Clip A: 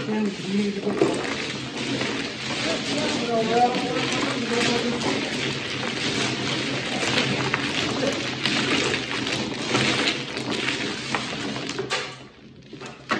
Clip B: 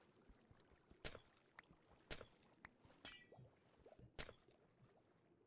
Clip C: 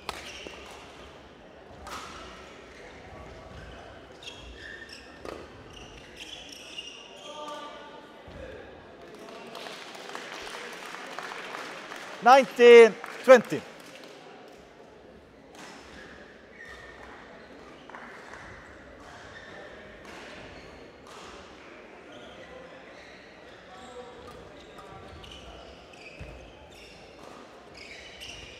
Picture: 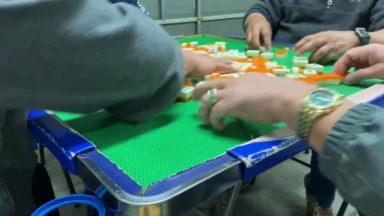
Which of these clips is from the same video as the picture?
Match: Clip A